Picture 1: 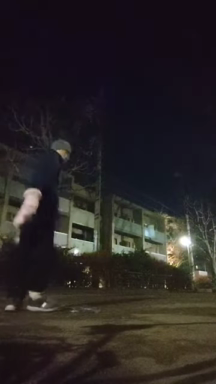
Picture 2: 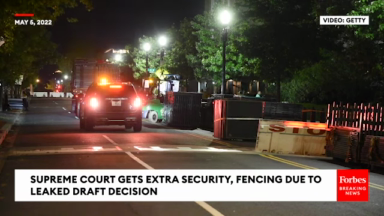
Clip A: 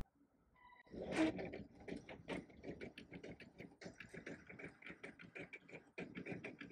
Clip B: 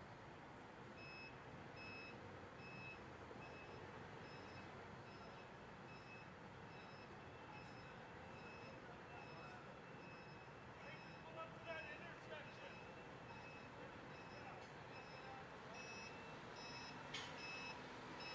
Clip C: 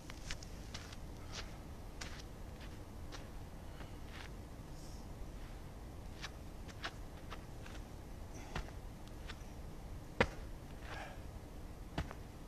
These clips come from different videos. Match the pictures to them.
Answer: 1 C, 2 B